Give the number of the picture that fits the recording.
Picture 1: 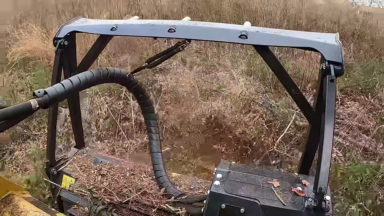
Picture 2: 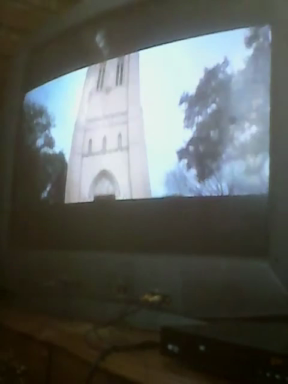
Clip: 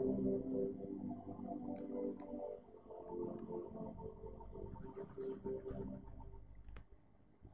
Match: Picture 2